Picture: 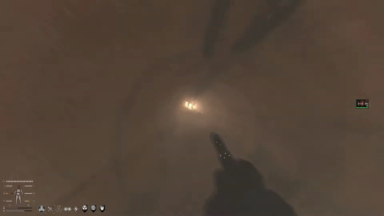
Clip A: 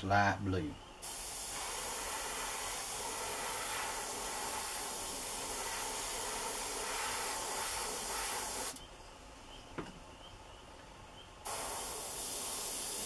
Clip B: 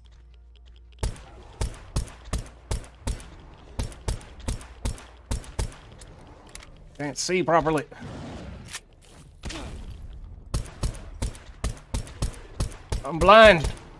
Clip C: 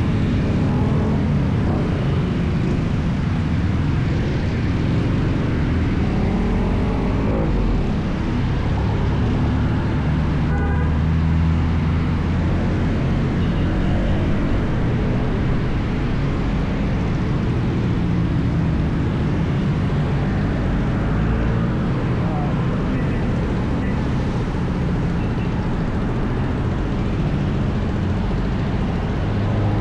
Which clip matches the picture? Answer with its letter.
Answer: B